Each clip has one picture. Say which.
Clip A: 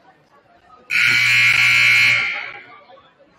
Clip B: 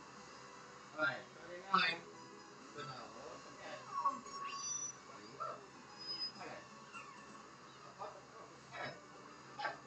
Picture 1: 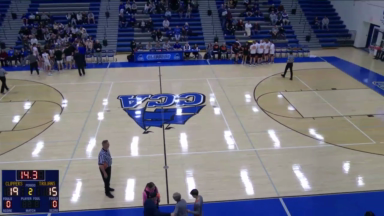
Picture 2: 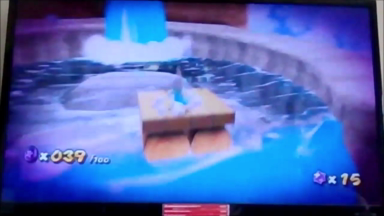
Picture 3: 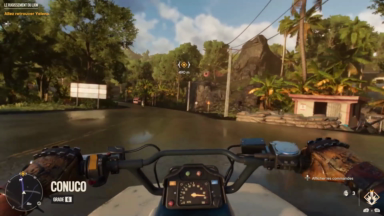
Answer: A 1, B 2